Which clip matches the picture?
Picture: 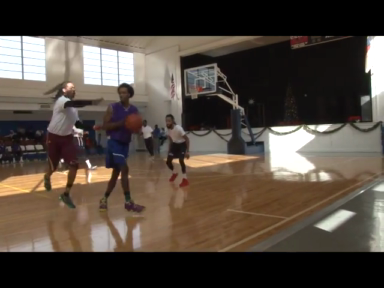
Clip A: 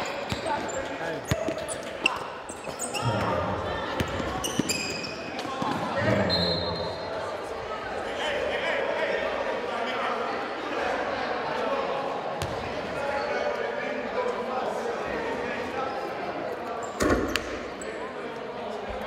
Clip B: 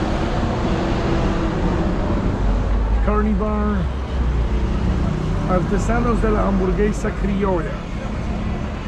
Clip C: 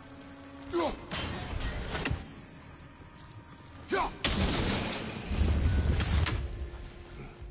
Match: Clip A